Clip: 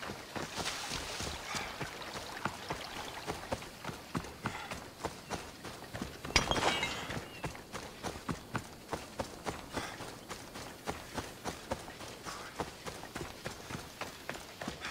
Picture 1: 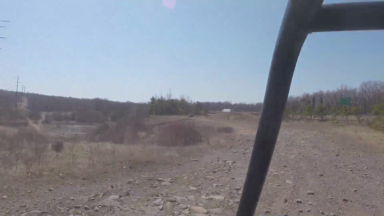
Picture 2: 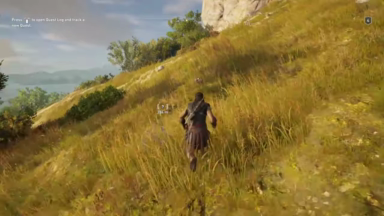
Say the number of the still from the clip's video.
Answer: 2